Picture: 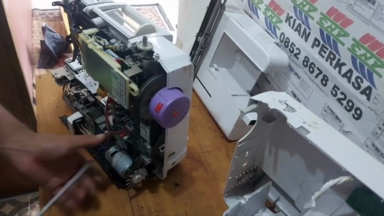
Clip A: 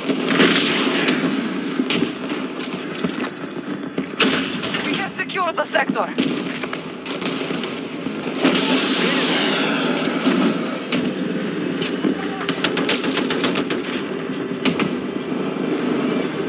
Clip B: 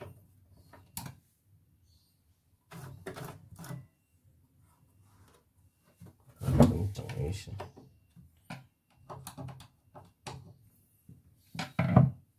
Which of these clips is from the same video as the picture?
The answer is B